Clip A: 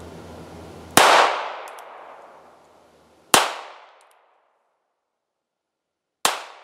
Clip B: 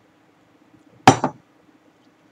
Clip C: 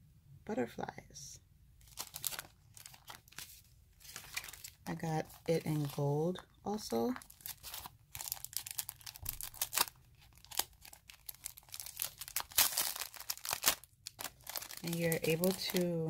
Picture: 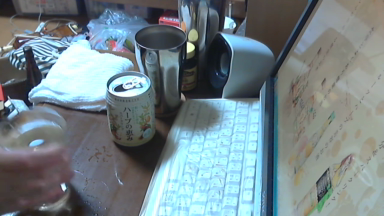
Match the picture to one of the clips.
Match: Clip B